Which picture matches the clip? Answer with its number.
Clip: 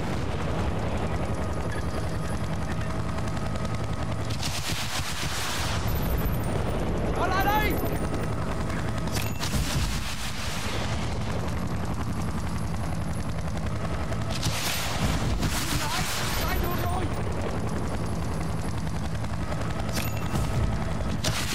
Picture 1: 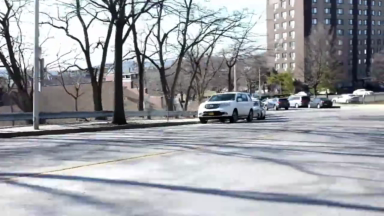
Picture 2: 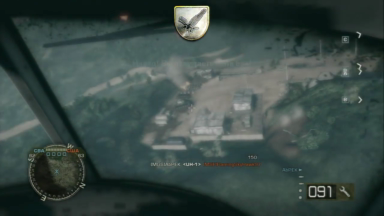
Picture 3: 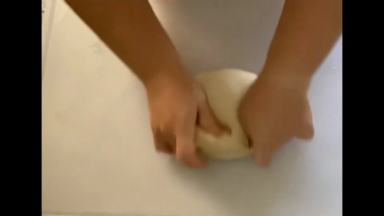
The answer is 2